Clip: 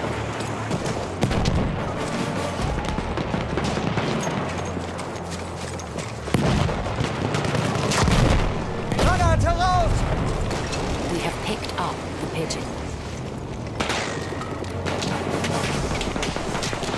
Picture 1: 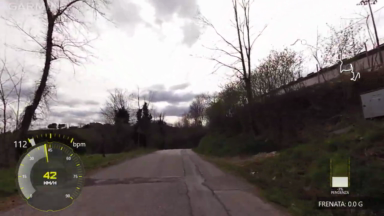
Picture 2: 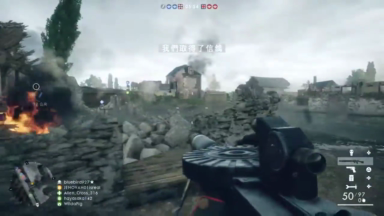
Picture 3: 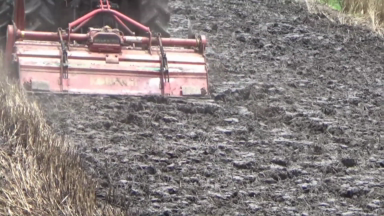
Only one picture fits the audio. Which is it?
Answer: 2